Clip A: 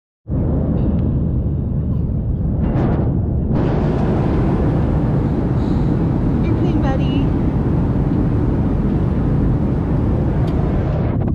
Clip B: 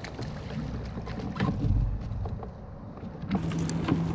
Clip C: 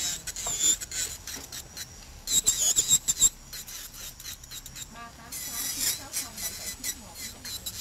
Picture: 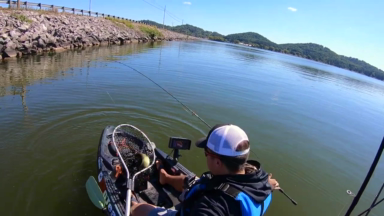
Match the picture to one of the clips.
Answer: B